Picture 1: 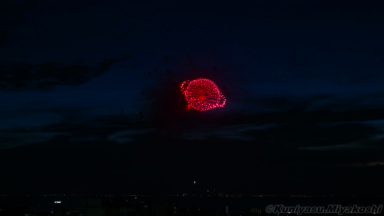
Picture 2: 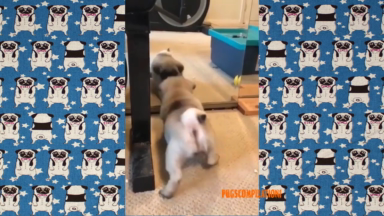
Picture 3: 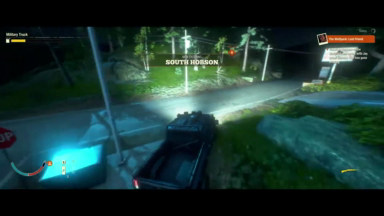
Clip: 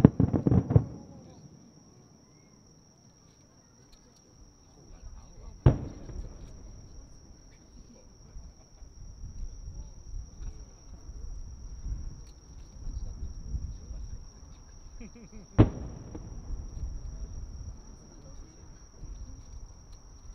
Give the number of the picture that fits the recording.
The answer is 1